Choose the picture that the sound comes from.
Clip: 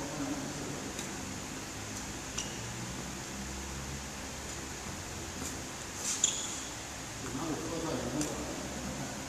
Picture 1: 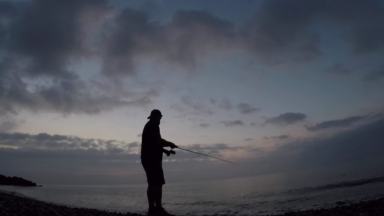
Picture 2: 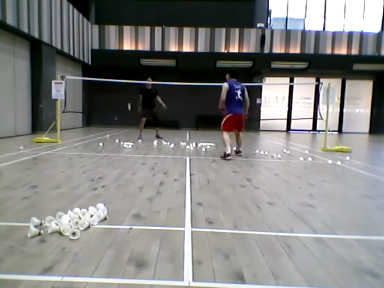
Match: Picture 2